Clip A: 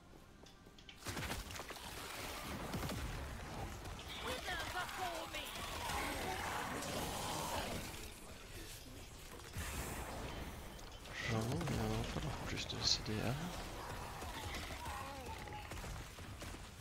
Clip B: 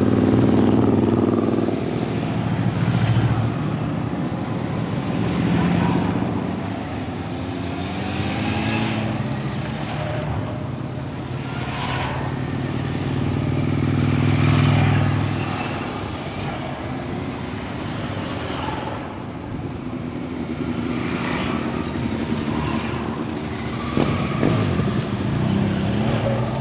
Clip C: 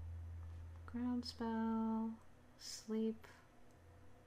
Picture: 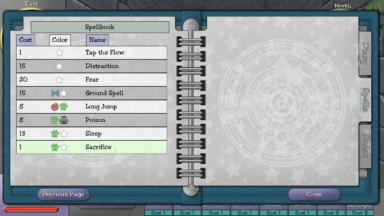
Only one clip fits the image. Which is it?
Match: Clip C